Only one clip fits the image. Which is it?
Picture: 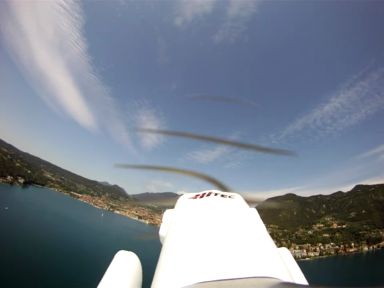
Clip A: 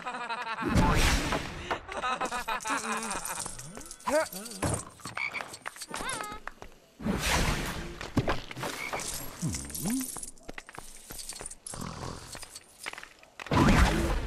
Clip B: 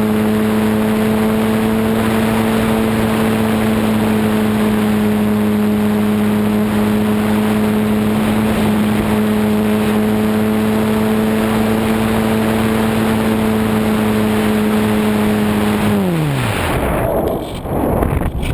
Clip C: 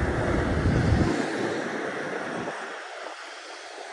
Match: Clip B